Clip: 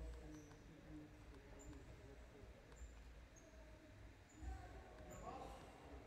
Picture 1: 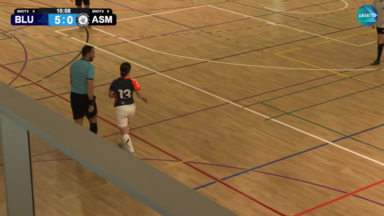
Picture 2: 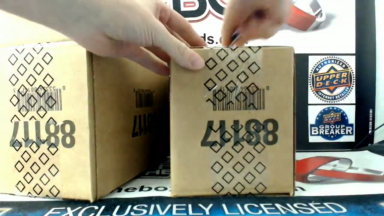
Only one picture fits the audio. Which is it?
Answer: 1